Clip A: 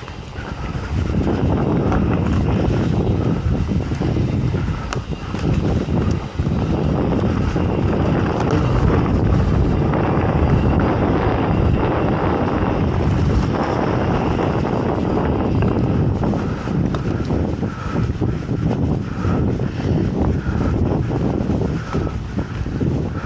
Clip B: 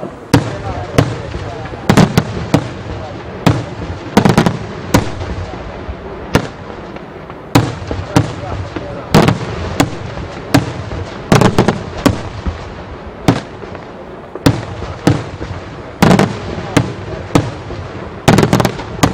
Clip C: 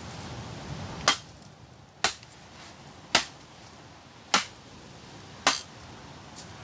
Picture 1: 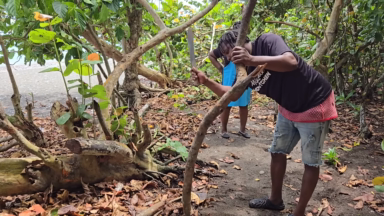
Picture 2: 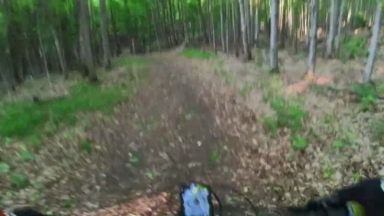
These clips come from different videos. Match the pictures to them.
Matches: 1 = C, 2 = A